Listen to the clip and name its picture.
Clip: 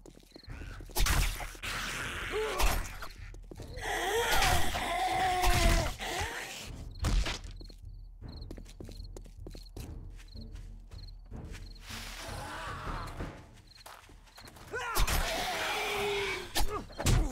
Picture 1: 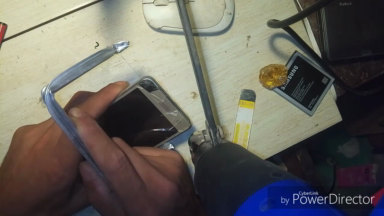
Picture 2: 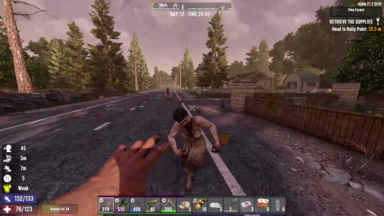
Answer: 2